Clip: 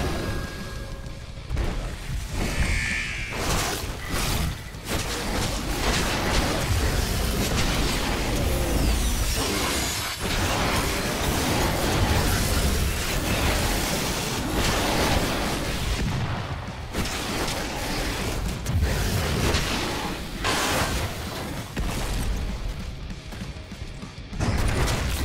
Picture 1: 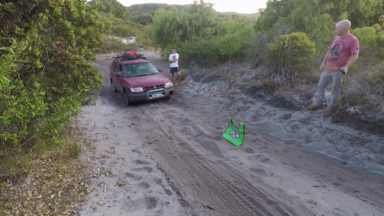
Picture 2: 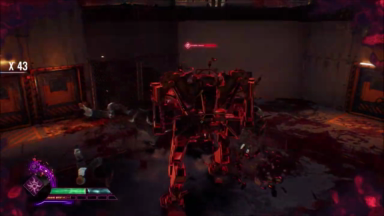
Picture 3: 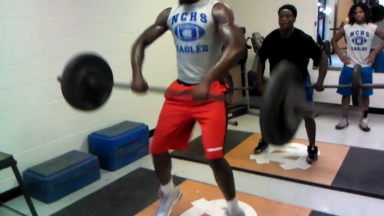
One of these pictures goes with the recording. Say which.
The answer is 2